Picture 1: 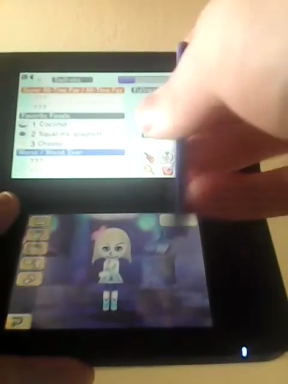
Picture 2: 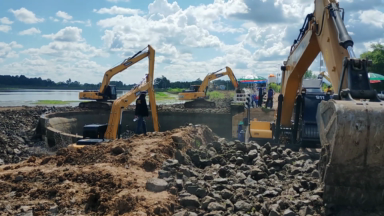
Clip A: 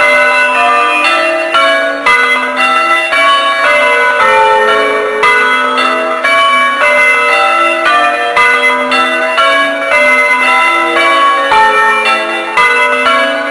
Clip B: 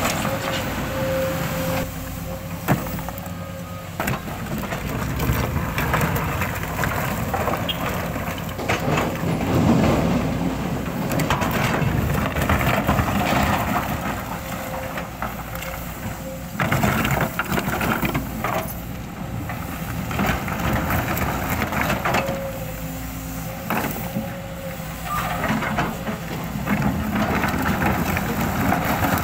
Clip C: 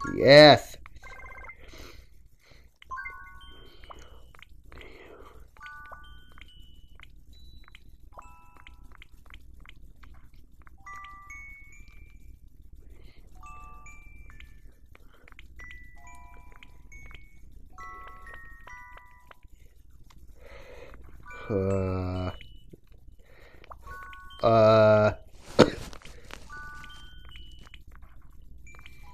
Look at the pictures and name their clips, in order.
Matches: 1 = C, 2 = B